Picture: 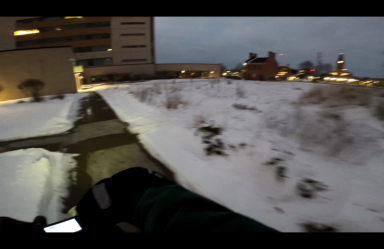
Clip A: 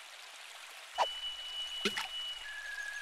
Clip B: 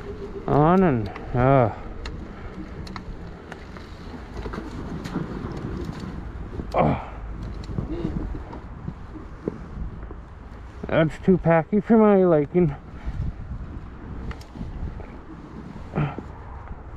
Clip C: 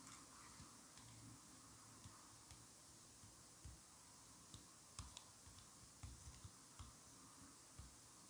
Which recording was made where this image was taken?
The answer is B